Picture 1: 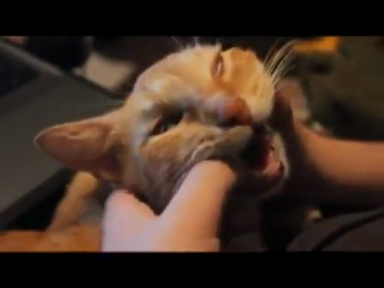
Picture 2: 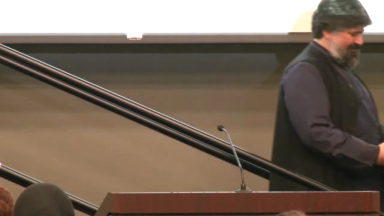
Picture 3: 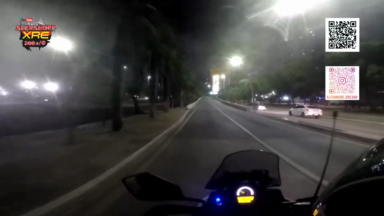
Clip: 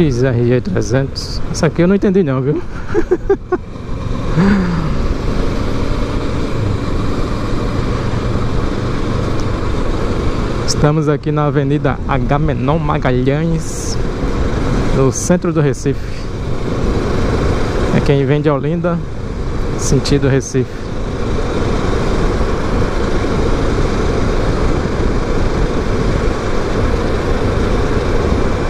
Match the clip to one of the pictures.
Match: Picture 3